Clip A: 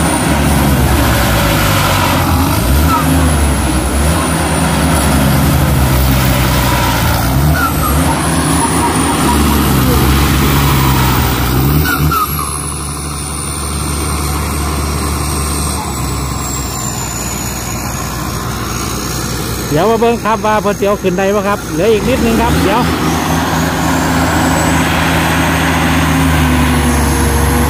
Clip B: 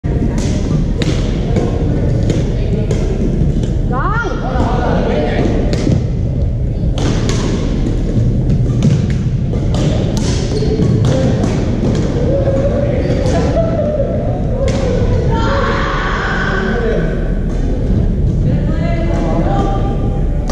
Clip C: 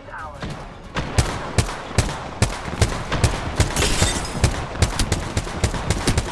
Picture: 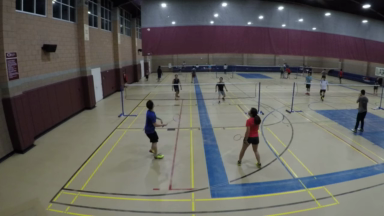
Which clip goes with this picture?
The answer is B